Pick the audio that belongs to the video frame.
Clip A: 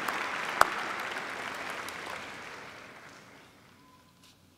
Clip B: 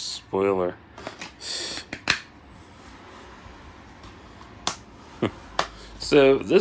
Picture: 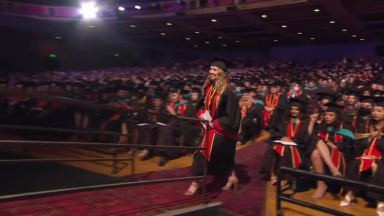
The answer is A